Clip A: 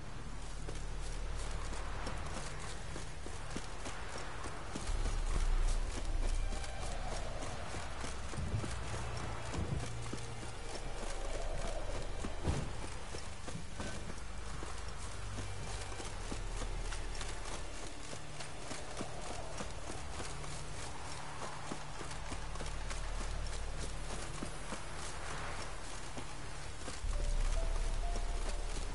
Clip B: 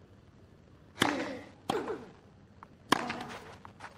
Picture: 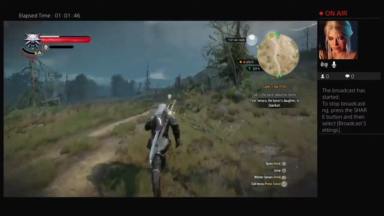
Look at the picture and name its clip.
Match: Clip A